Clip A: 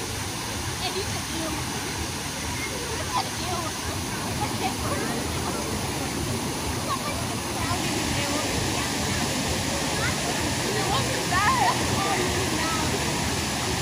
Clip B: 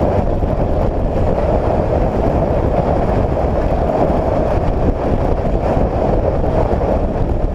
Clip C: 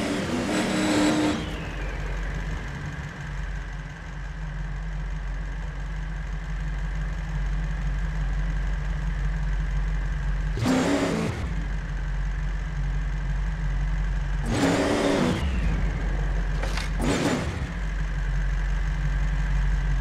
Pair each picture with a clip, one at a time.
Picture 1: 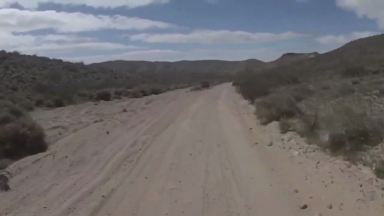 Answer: B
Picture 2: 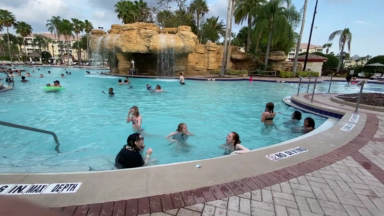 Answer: A